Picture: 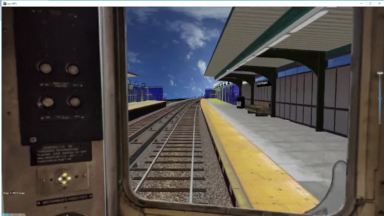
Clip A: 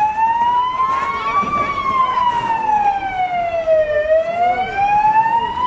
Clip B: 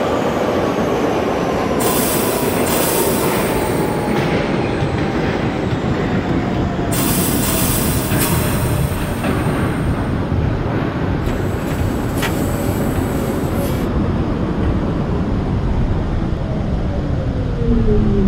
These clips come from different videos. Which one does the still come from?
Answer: B